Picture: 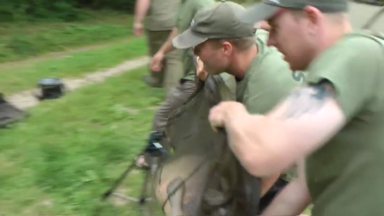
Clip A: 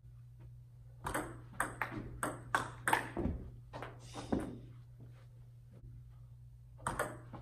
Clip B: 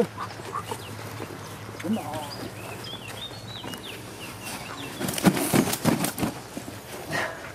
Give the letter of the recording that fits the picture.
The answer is B